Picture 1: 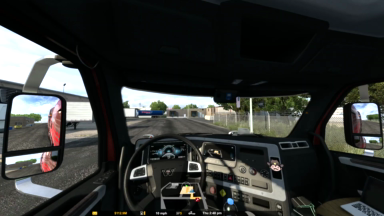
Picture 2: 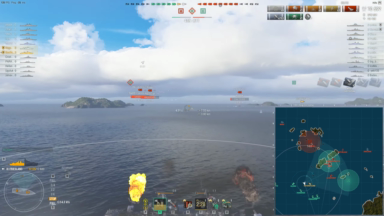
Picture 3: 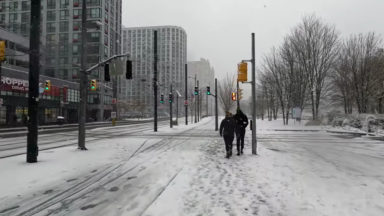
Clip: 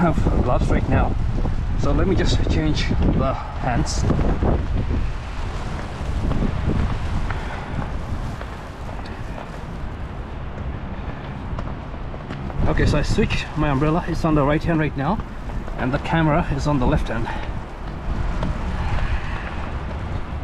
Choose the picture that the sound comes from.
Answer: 3